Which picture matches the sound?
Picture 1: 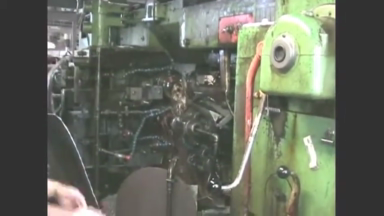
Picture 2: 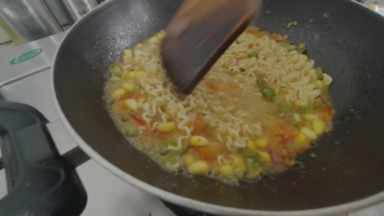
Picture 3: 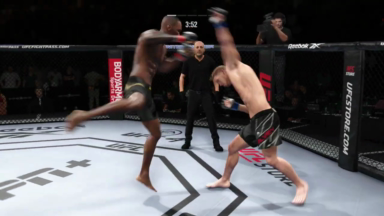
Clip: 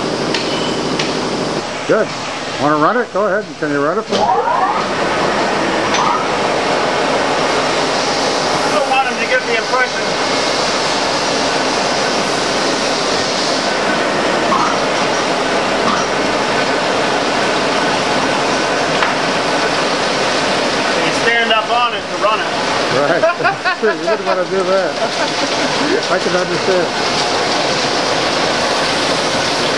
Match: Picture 1